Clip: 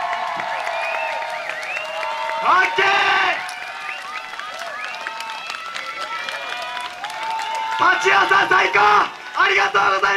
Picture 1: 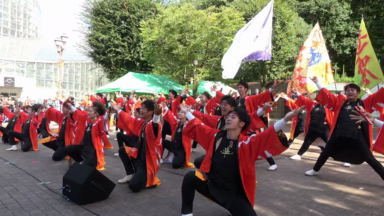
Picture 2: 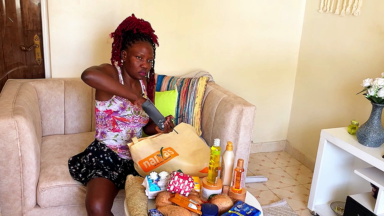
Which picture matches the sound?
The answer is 1